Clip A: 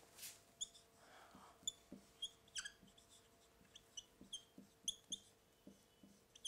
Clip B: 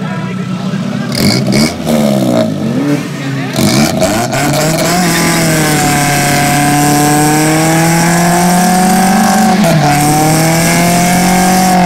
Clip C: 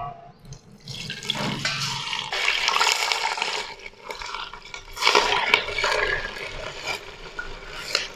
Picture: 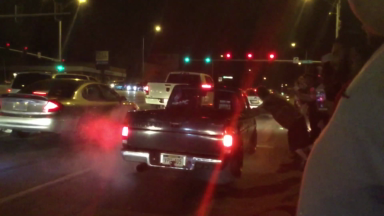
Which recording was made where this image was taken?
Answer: B